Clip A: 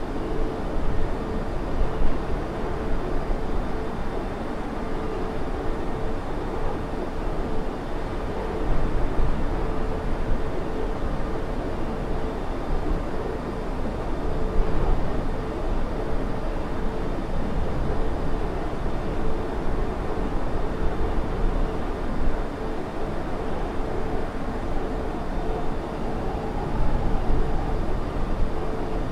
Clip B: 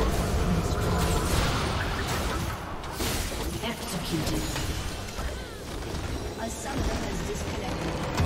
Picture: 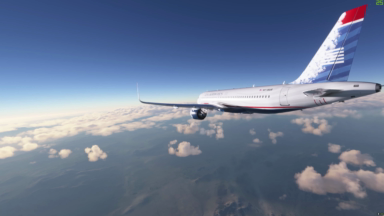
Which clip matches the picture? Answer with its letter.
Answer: A